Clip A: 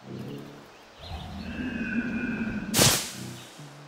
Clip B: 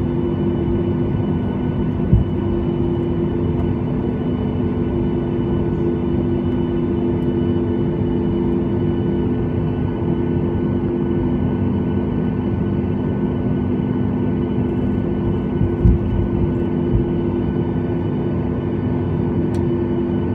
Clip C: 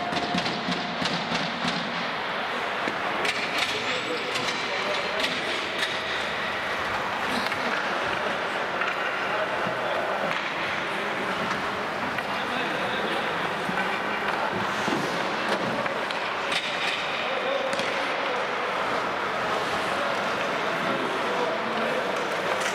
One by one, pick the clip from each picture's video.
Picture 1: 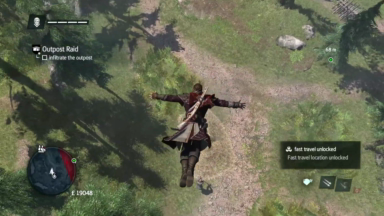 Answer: A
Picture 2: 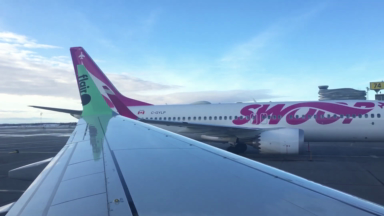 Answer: B